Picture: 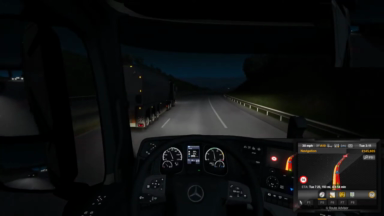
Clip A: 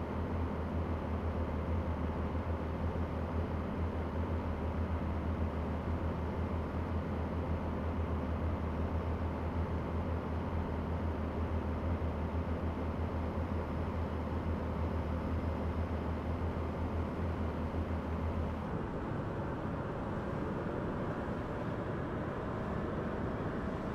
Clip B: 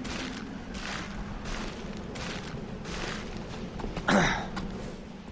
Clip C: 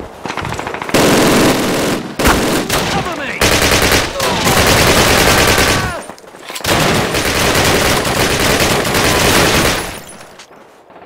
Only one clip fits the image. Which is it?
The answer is A